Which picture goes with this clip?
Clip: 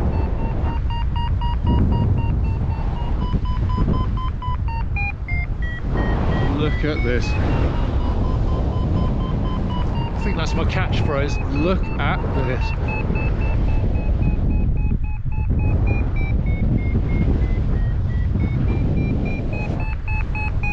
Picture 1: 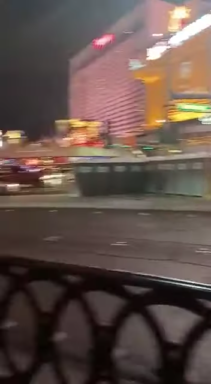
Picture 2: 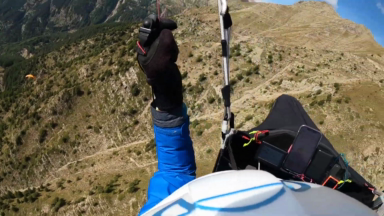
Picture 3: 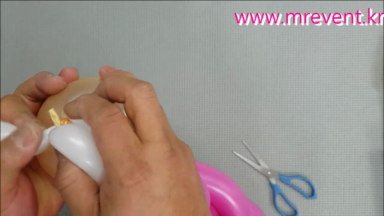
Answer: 2